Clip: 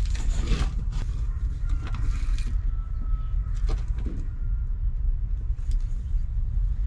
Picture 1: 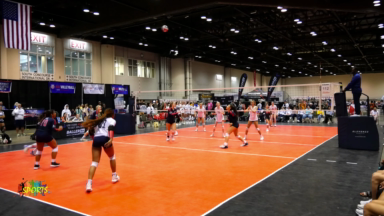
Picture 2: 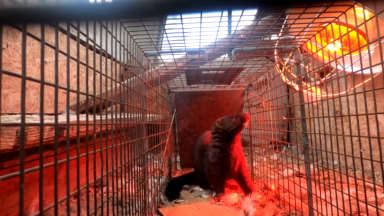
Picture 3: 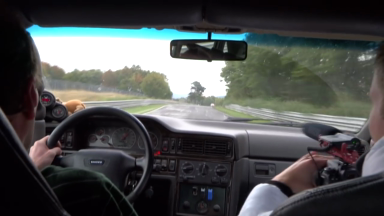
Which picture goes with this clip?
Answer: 2